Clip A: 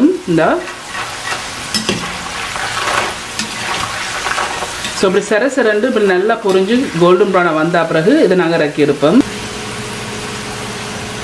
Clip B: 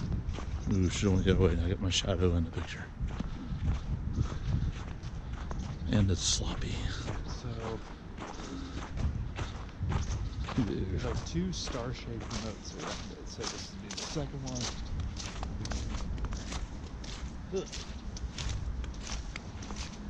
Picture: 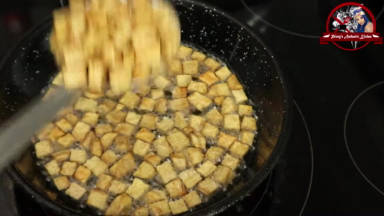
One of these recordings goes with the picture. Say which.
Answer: A